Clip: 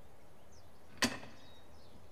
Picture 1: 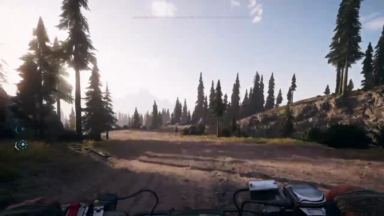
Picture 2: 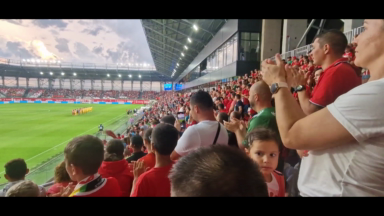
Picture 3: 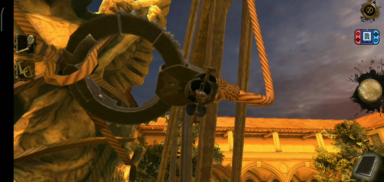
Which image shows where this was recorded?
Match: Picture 3